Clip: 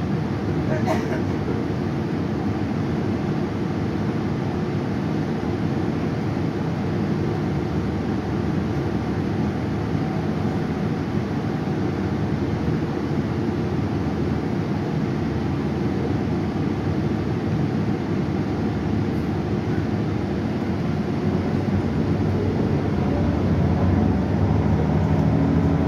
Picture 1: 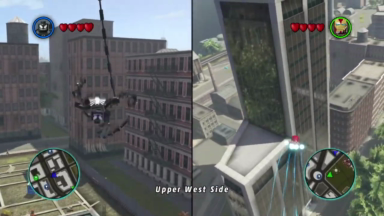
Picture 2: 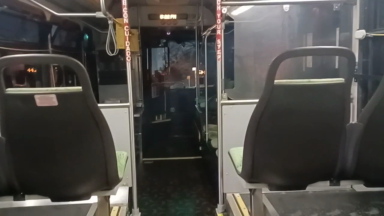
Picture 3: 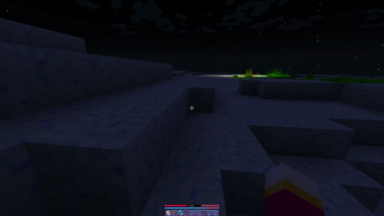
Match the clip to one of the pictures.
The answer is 2